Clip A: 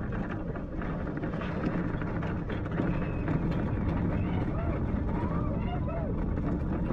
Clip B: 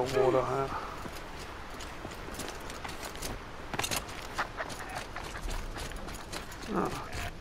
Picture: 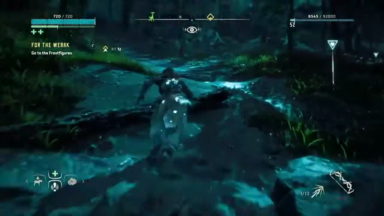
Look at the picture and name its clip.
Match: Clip B